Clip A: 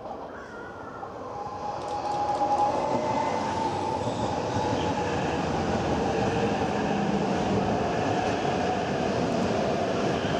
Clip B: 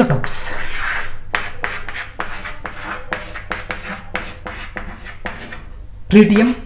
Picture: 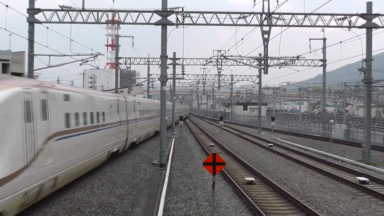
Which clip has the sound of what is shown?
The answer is A